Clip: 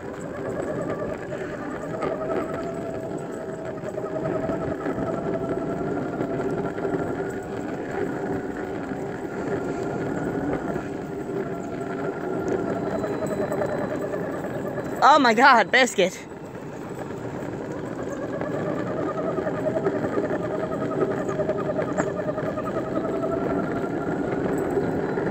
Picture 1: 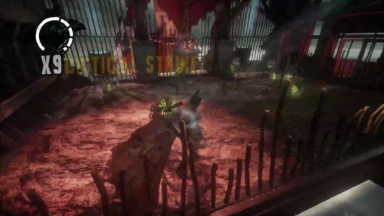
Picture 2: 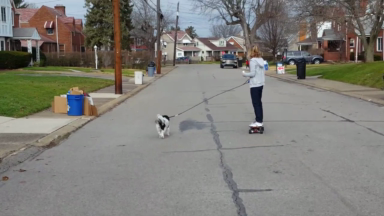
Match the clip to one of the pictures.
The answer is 2